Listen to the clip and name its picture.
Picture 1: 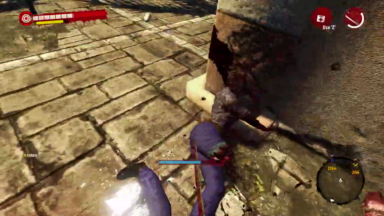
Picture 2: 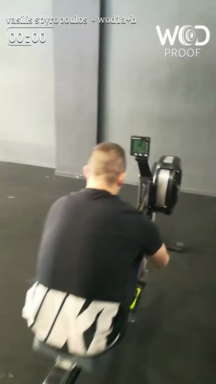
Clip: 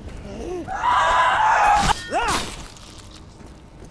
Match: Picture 1